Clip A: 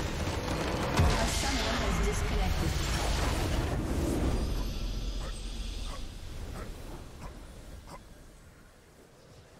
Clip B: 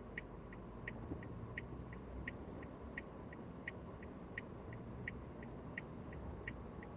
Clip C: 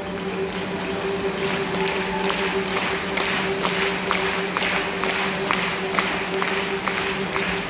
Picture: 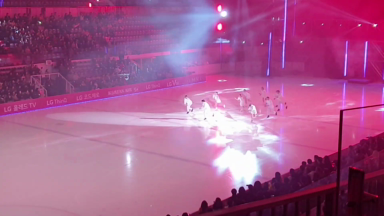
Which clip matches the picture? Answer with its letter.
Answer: C